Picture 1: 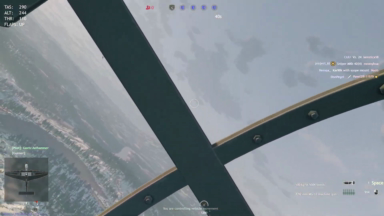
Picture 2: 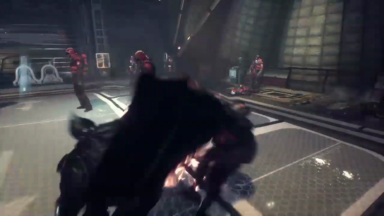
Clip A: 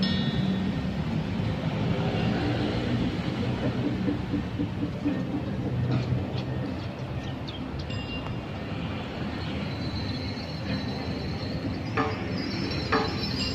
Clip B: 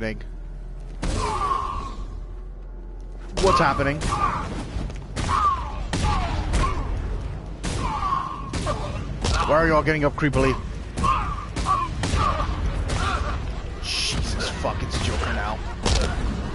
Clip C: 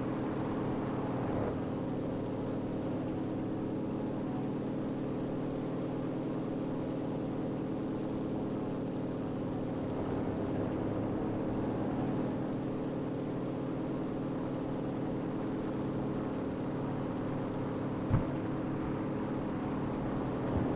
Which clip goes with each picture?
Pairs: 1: C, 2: B